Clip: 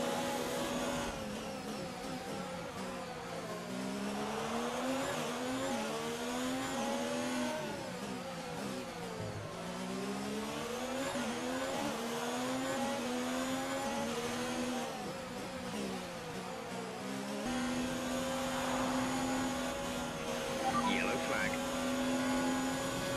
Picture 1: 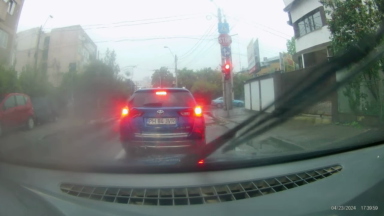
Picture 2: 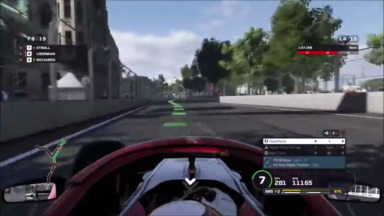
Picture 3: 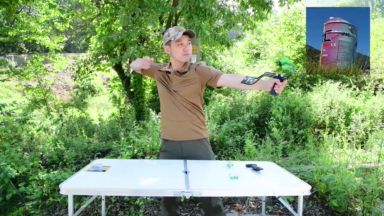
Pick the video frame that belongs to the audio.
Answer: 2